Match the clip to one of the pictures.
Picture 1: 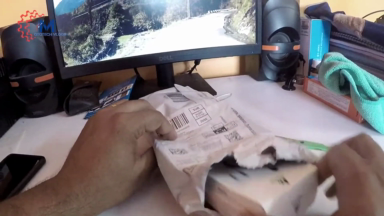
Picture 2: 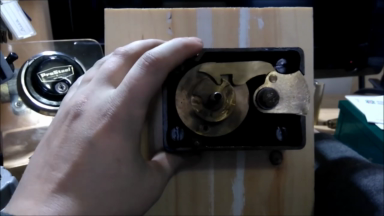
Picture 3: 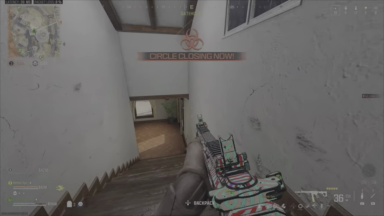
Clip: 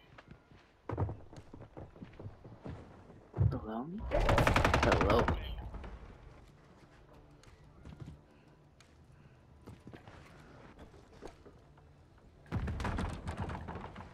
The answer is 3